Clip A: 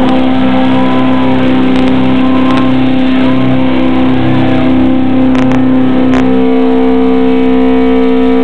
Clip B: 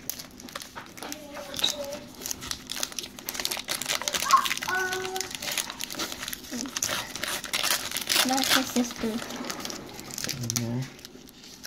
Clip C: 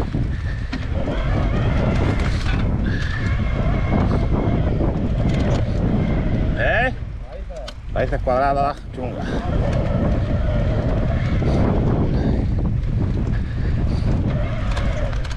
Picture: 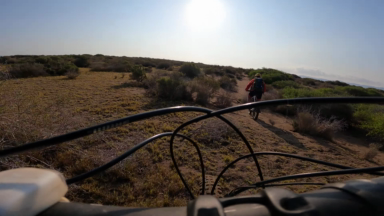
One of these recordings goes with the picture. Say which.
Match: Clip C